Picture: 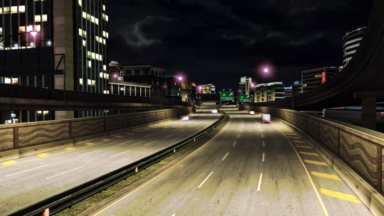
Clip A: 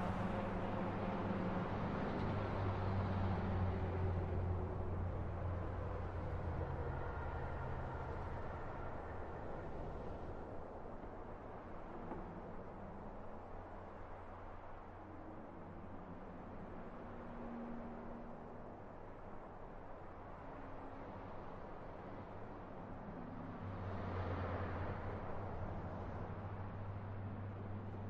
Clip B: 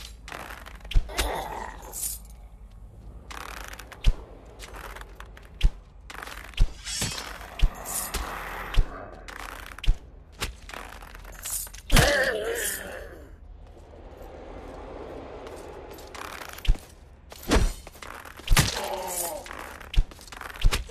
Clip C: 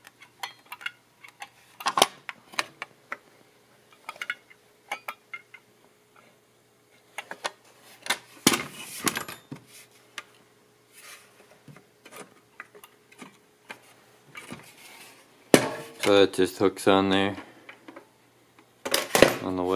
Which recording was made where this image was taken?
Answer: A